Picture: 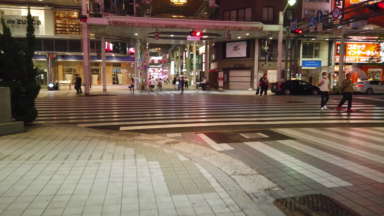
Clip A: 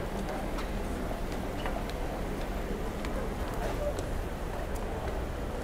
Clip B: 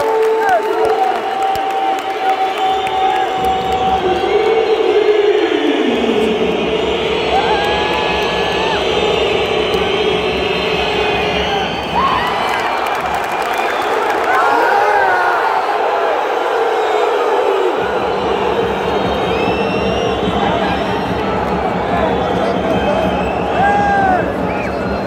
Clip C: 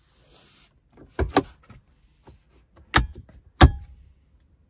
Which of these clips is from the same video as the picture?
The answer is A